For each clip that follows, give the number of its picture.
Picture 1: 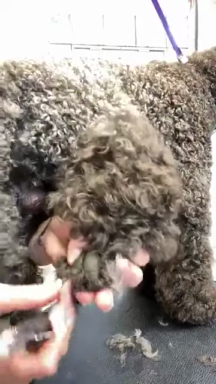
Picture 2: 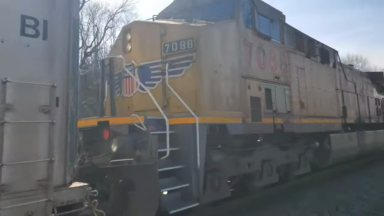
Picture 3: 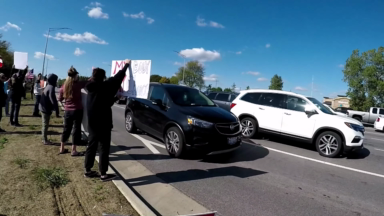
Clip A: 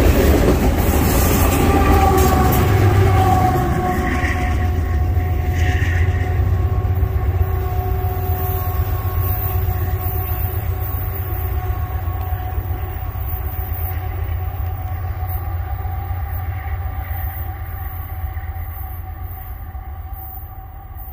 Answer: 2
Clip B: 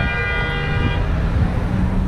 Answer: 3